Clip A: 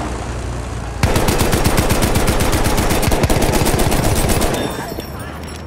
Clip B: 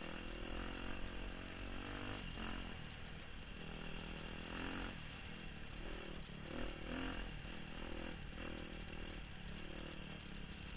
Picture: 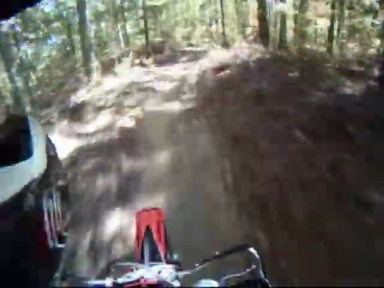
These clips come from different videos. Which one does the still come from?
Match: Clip B